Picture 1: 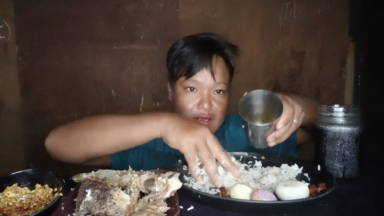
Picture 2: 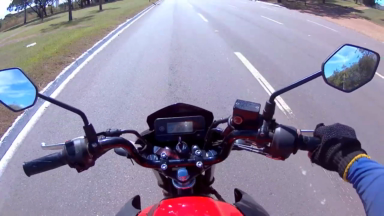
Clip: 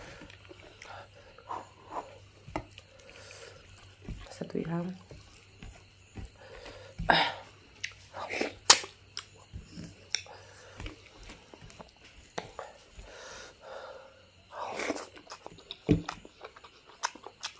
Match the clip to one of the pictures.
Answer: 1